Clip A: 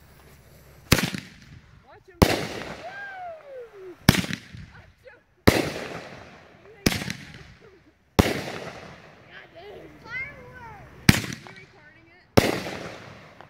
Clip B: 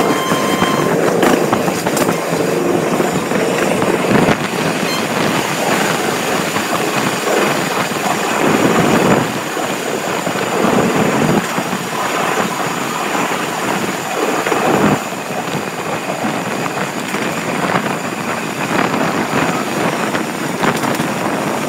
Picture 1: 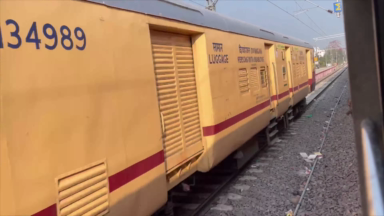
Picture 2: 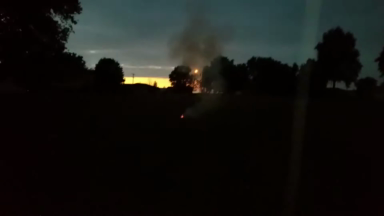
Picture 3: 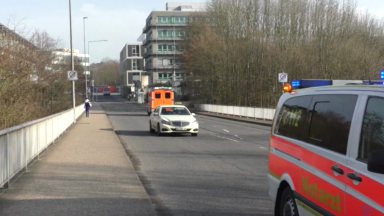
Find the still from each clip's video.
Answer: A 2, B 1